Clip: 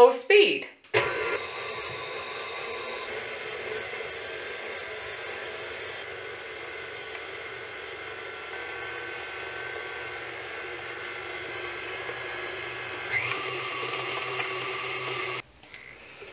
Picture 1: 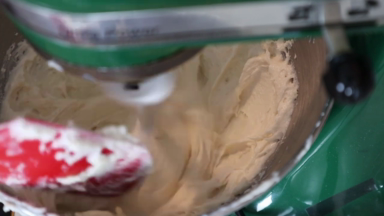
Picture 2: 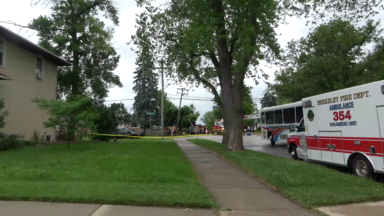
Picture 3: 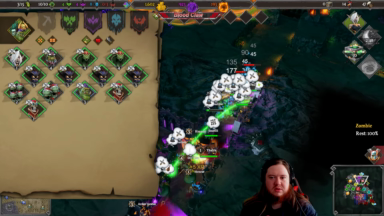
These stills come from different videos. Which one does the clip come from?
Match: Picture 1